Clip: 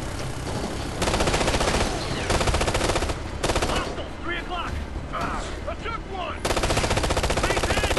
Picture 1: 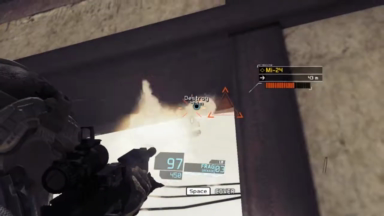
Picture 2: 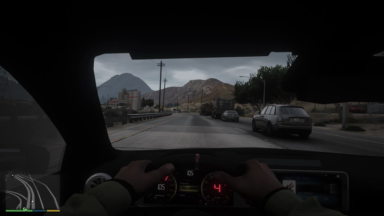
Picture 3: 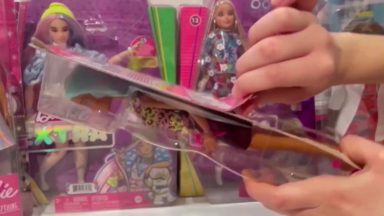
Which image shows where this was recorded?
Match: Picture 1